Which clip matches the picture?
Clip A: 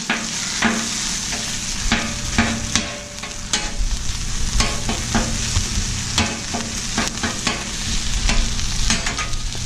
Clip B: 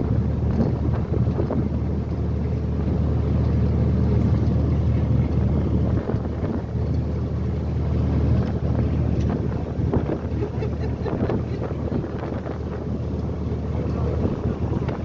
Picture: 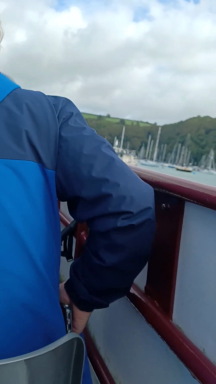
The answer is B